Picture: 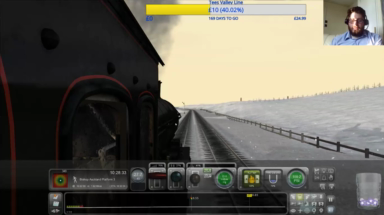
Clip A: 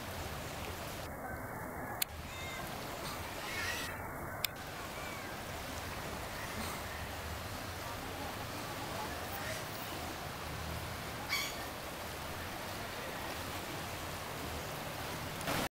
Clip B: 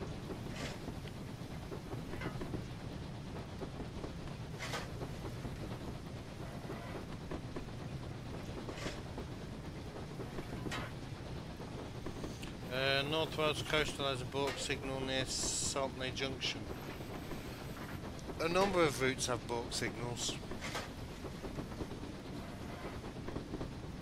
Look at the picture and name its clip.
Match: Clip B